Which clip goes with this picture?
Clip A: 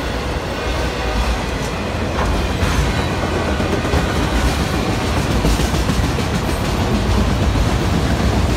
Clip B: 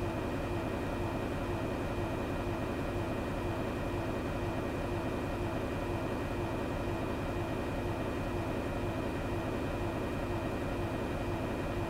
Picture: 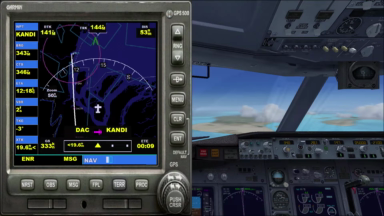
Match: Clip B